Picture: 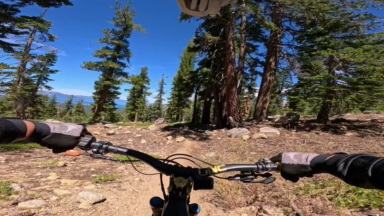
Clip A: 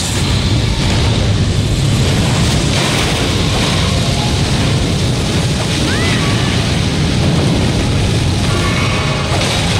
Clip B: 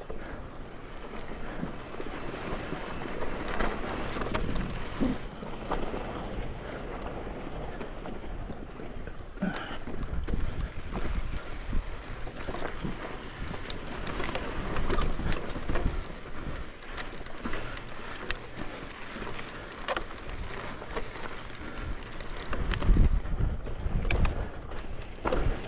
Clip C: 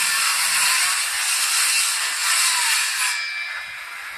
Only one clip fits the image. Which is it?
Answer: B